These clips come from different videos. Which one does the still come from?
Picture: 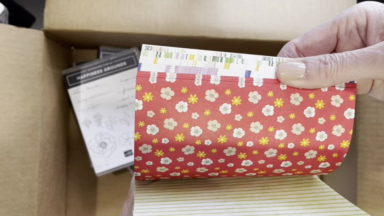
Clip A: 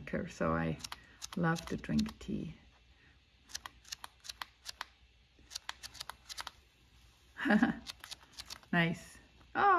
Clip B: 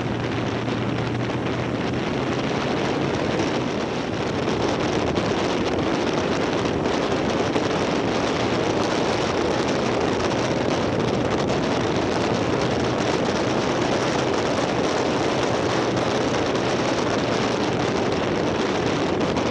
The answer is A